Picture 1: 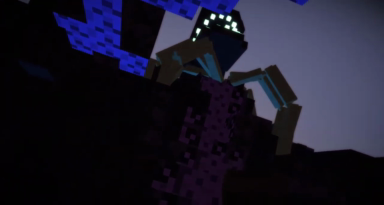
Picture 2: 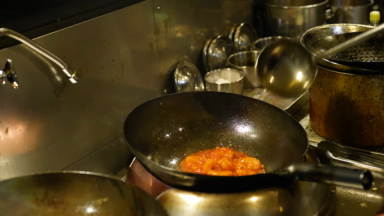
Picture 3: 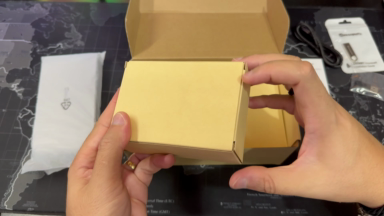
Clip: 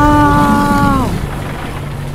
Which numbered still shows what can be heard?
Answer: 1